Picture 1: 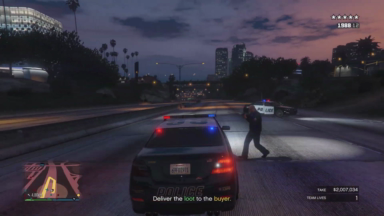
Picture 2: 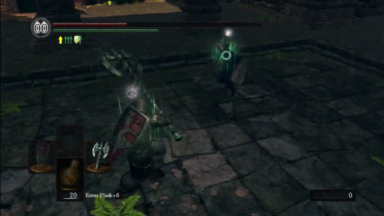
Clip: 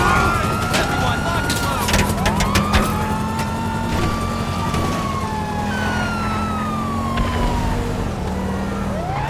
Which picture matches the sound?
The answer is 1